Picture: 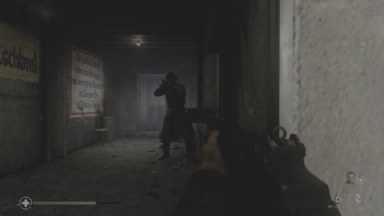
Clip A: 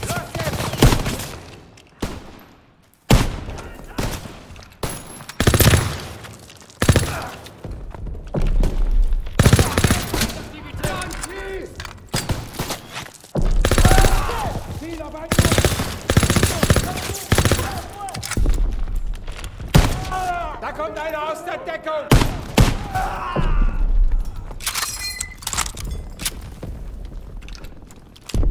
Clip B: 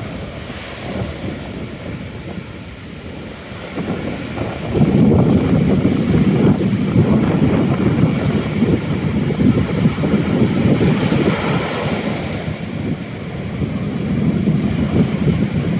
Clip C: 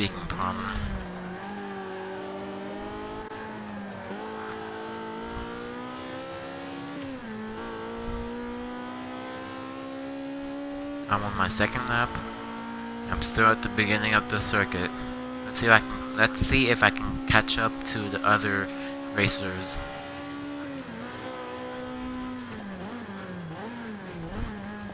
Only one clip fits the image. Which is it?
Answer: A